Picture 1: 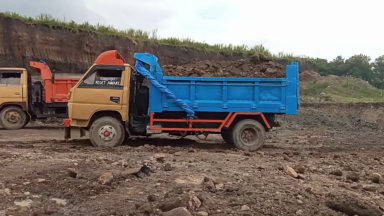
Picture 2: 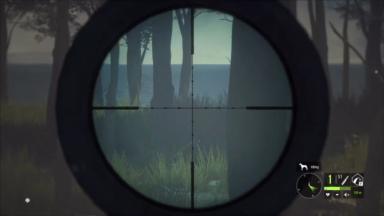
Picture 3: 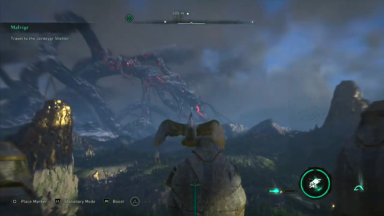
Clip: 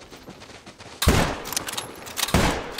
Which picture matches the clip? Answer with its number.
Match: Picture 2